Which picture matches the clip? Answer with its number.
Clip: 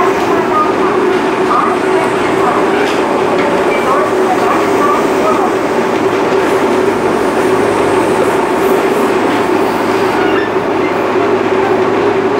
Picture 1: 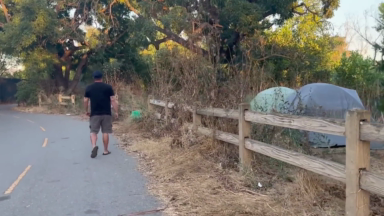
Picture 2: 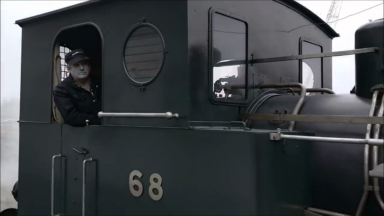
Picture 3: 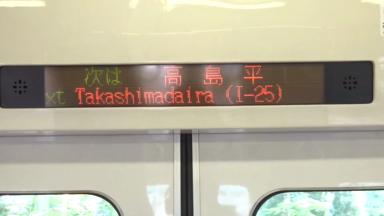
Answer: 3